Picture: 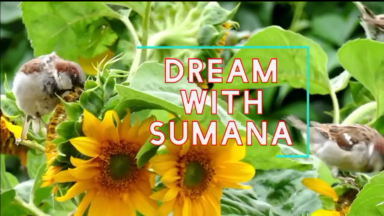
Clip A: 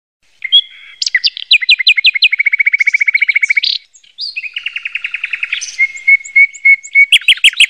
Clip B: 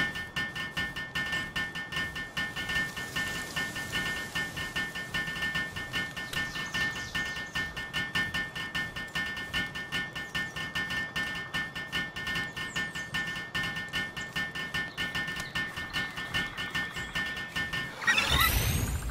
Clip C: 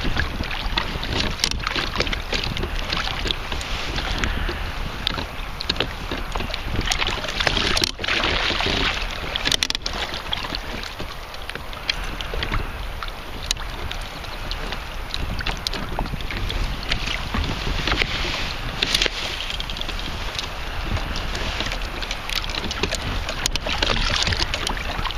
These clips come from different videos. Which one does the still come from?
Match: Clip A